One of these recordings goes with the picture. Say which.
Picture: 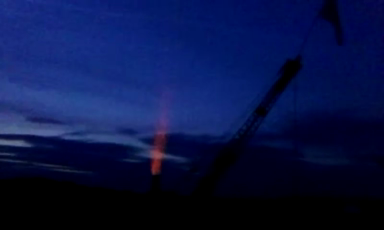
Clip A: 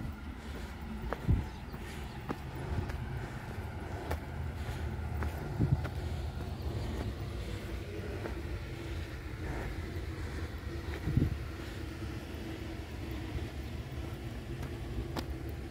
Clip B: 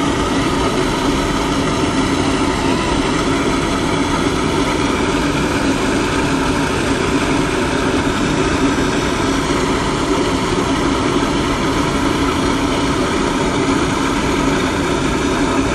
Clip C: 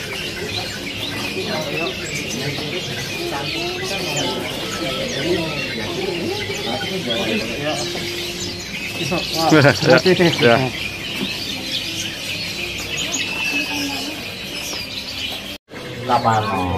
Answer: B